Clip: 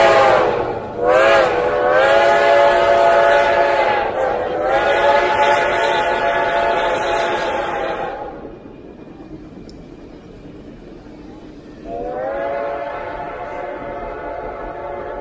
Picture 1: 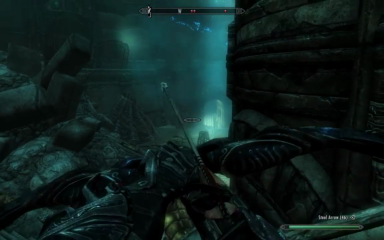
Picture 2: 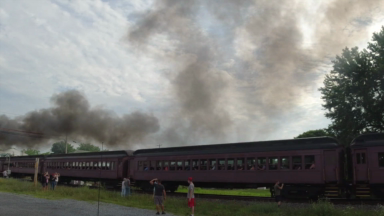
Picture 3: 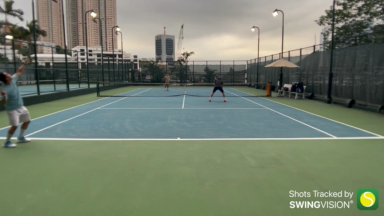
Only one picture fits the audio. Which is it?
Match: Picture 2